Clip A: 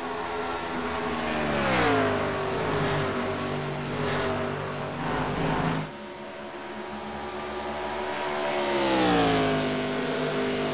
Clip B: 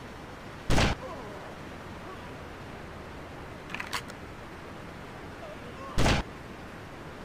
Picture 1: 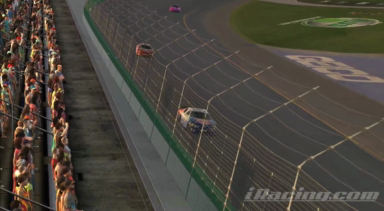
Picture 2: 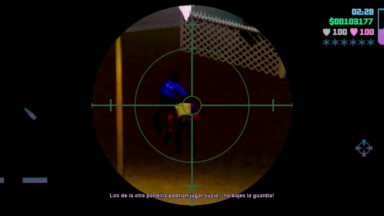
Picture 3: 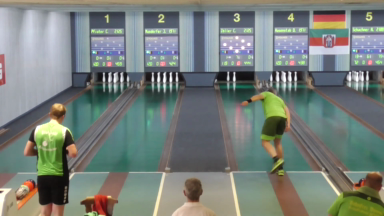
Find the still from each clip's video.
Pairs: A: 1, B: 2